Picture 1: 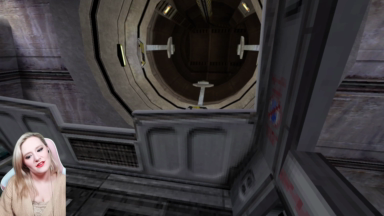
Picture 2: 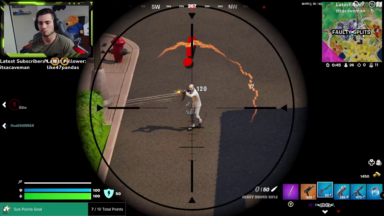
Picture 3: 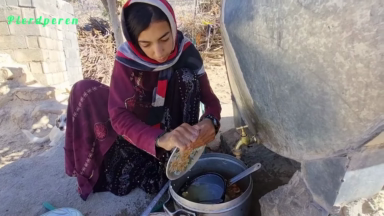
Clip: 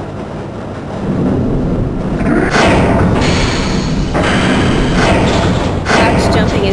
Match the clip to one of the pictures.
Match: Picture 1